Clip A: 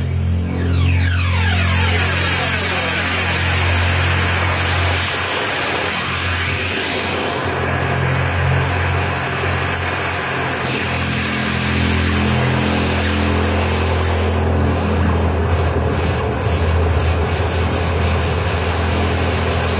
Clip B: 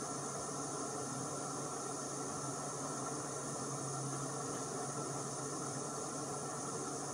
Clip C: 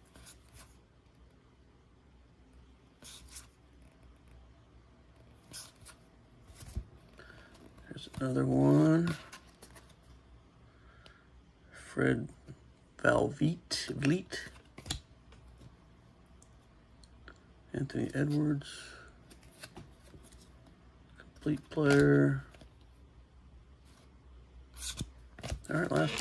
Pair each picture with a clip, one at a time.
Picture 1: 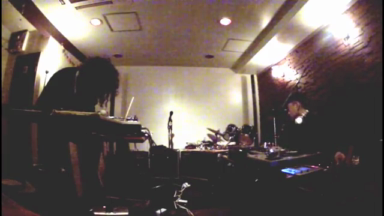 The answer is A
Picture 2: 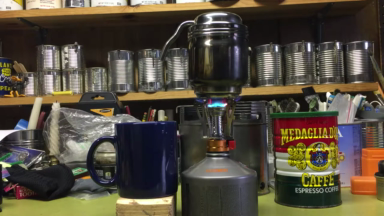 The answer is B